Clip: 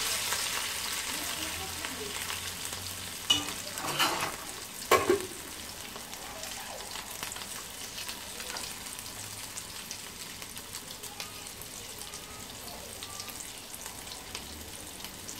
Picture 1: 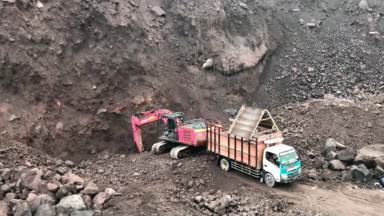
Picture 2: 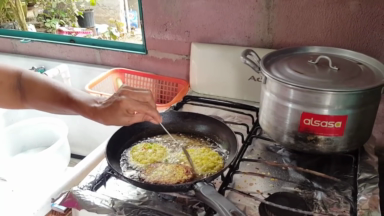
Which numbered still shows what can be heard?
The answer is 2